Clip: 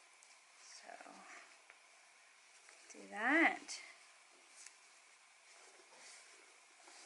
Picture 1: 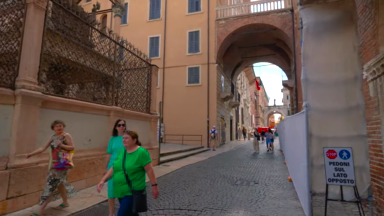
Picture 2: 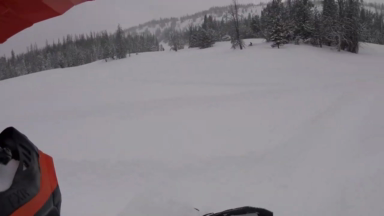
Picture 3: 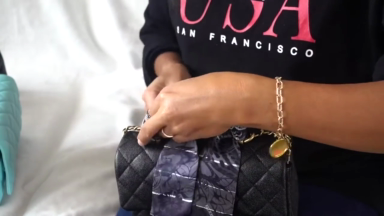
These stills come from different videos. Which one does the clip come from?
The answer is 3